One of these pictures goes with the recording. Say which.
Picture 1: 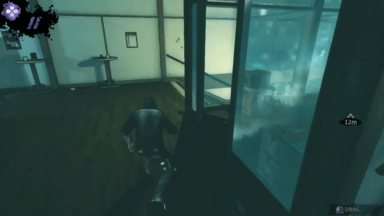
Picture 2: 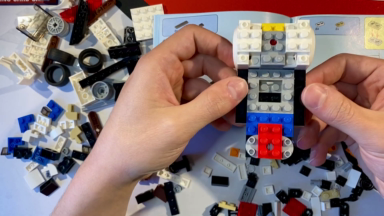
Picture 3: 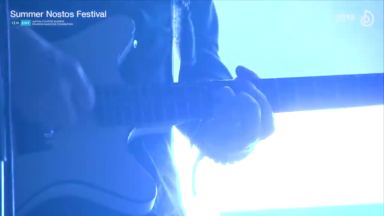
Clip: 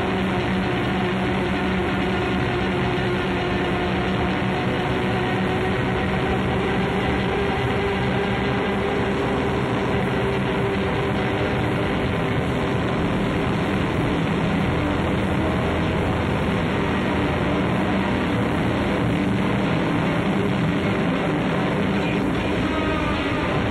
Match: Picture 3